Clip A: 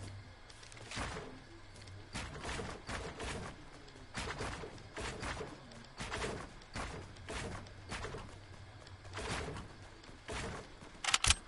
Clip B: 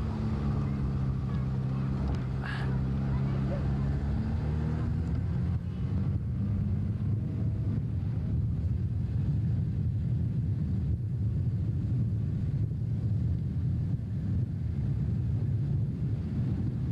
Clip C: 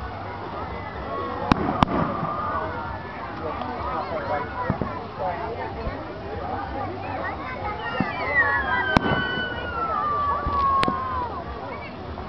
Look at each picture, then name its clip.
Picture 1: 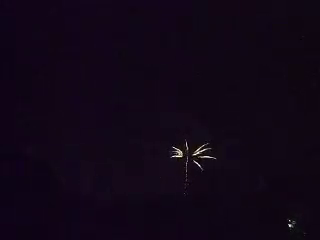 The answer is C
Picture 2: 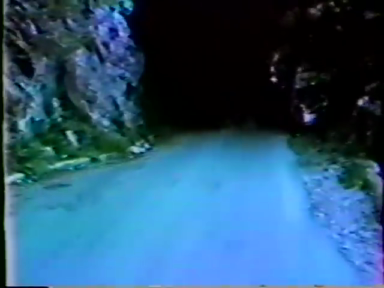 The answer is B